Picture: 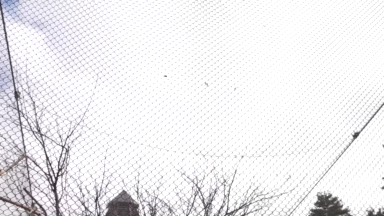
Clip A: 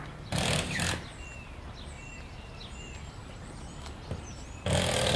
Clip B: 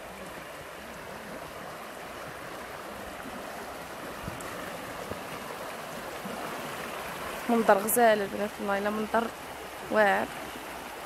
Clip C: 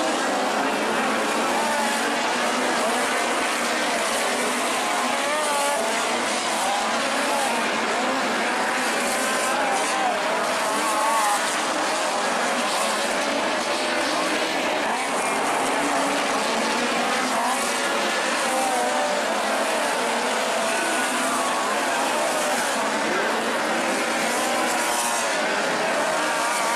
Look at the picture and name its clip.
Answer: A